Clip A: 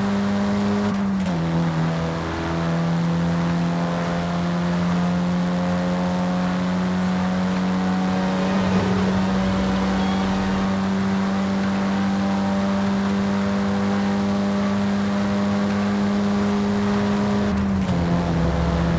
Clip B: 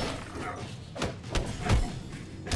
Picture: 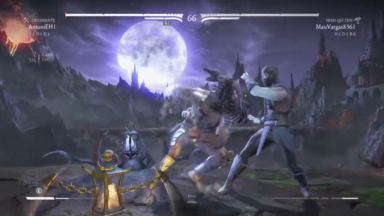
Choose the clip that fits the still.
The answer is B